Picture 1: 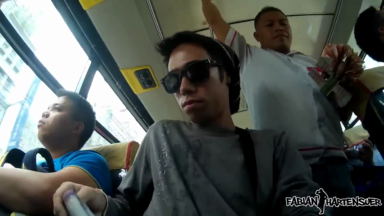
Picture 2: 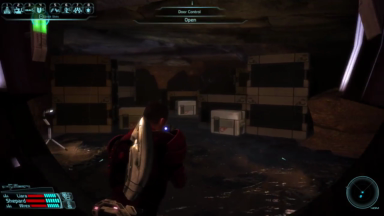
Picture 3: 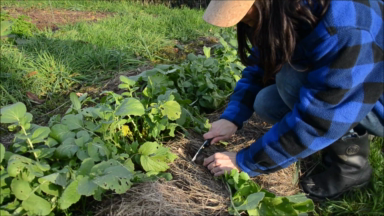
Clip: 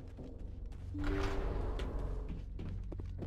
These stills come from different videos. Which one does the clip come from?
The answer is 2